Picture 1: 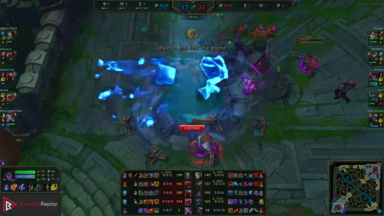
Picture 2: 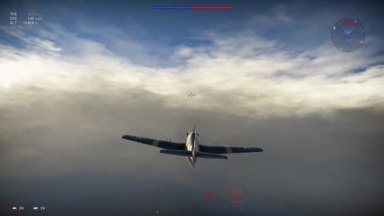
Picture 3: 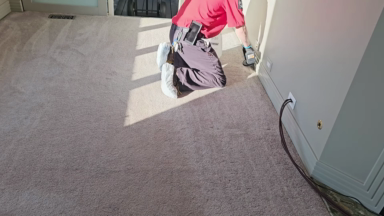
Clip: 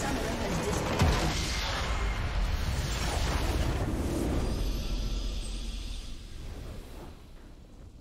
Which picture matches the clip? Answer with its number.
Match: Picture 1